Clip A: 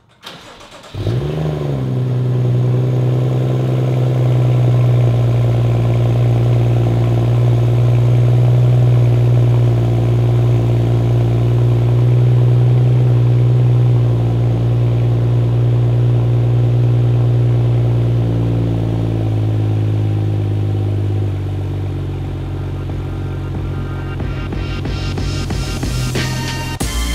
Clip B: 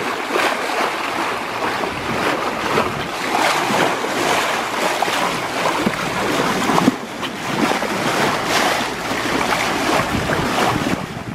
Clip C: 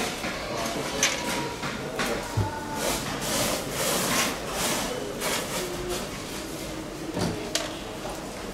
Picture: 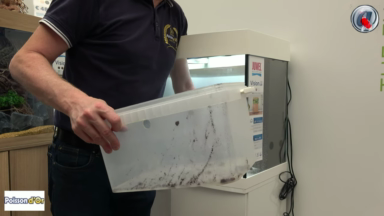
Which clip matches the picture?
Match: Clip C